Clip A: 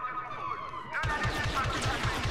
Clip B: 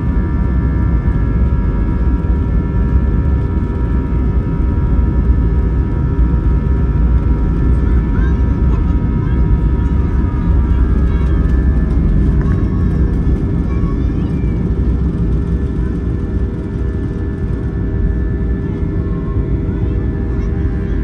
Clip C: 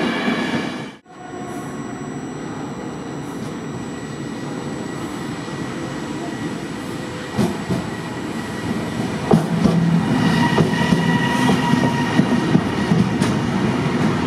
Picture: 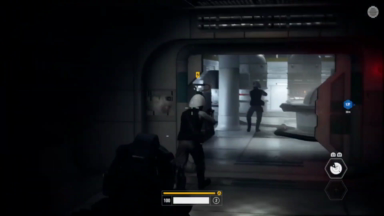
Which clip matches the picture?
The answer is A